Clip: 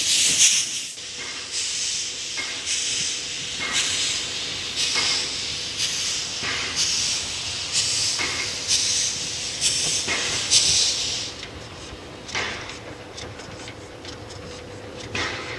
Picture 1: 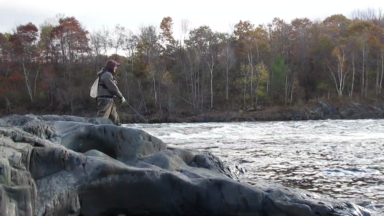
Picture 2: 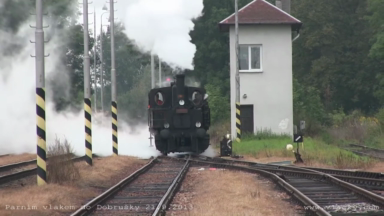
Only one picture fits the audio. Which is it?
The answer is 2